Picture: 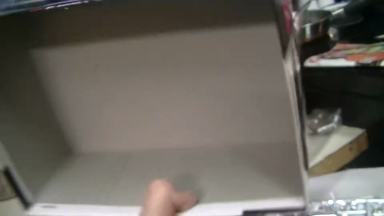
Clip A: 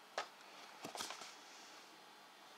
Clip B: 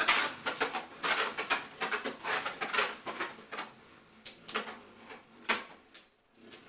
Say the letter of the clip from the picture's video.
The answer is A